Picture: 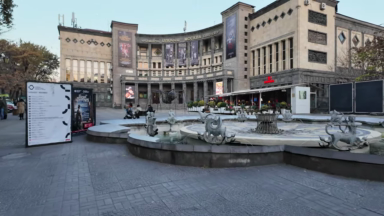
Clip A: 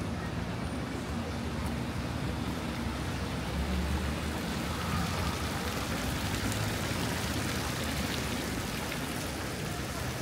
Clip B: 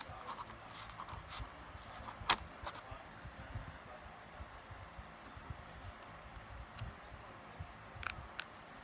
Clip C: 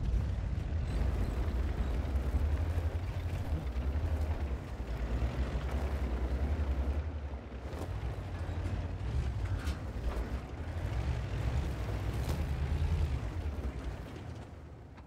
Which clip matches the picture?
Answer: A